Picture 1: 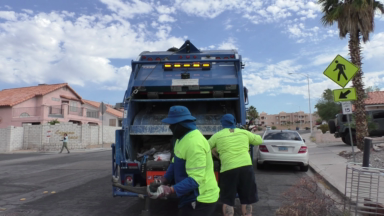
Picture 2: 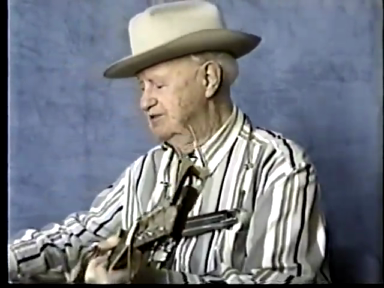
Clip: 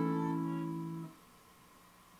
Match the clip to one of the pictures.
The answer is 2